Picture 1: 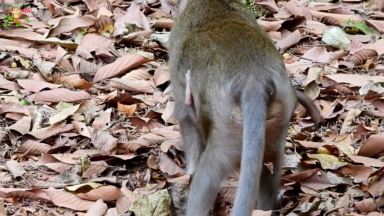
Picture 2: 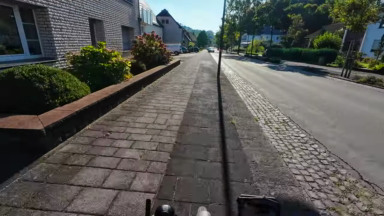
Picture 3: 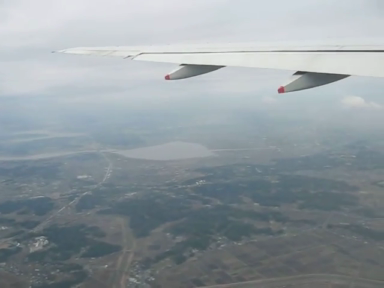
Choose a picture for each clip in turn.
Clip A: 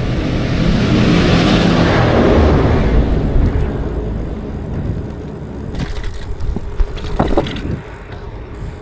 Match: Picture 2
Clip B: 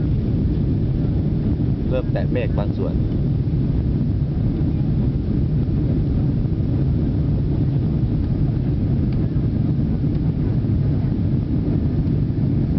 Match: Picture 3